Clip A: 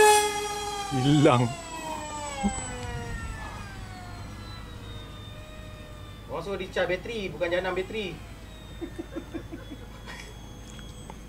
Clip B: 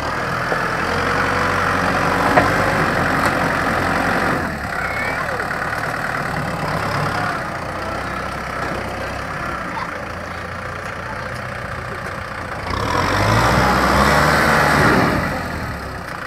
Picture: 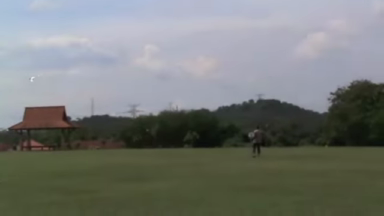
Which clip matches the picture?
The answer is A